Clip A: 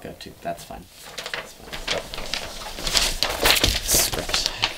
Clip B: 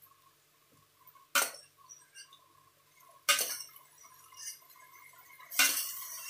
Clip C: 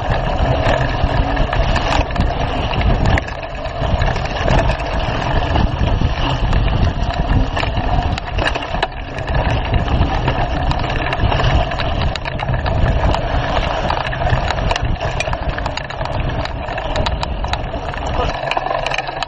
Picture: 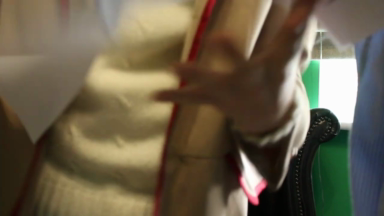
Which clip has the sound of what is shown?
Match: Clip A